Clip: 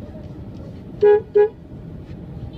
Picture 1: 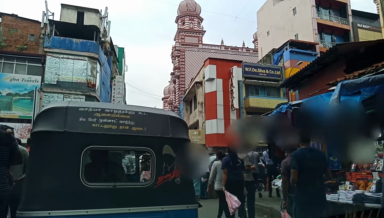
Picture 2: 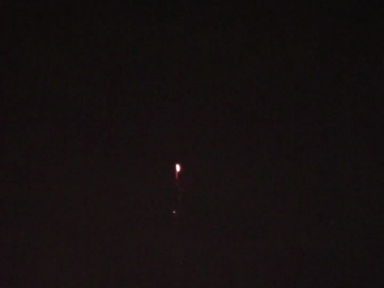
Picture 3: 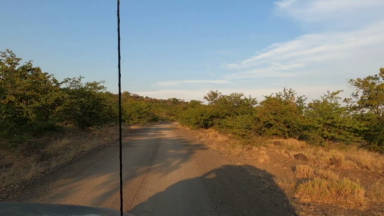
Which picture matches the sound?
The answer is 1